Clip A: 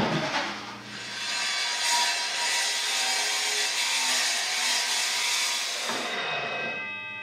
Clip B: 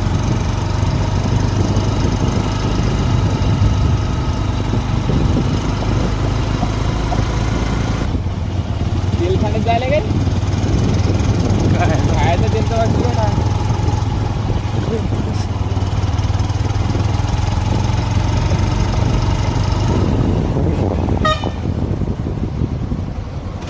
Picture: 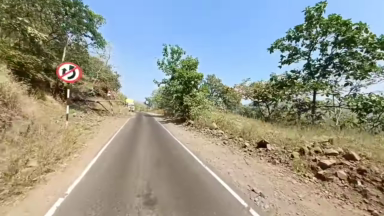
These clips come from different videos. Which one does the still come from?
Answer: B